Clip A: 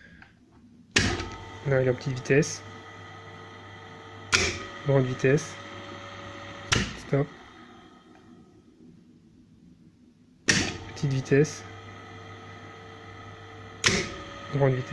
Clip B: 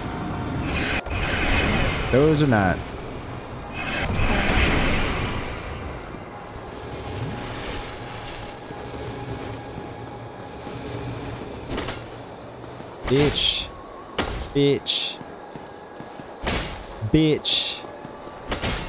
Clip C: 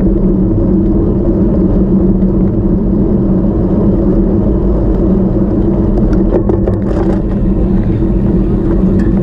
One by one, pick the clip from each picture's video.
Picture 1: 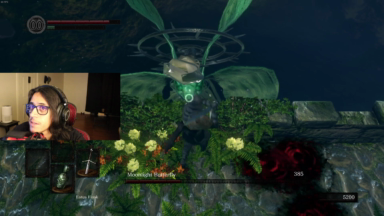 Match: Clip B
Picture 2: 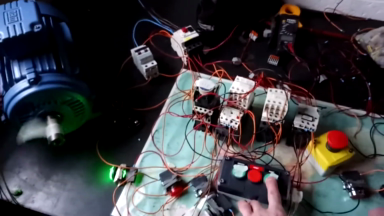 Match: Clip A